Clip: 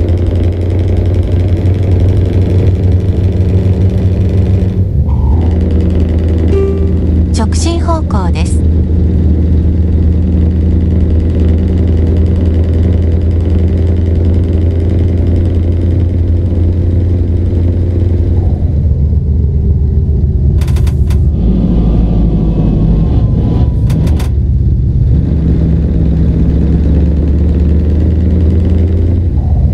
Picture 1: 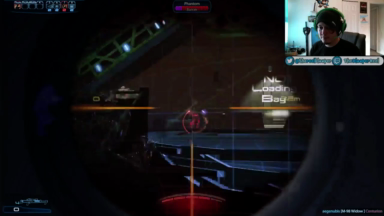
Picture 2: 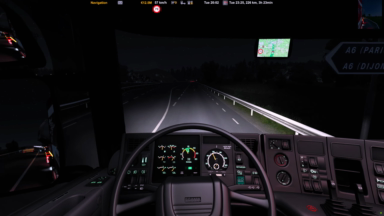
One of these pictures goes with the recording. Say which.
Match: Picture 2